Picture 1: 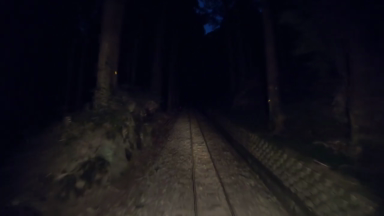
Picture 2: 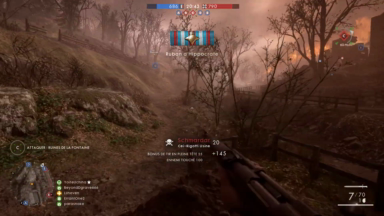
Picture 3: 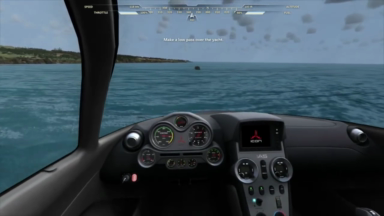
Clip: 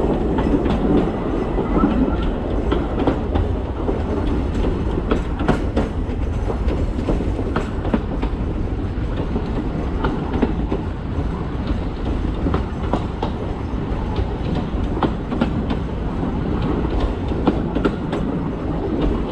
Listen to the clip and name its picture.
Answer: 1